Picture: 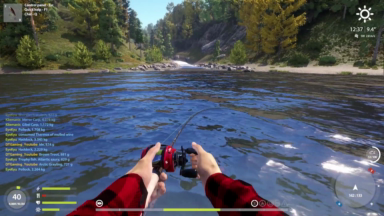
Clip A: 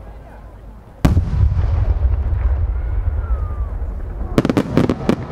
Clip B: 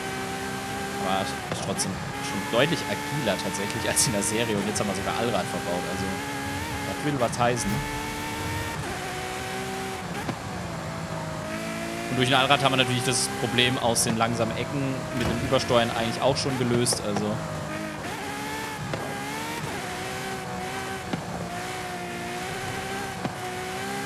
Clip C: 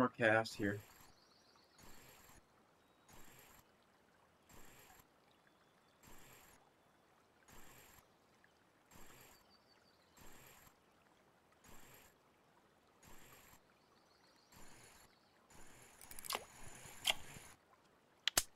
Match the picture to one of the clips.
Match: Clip C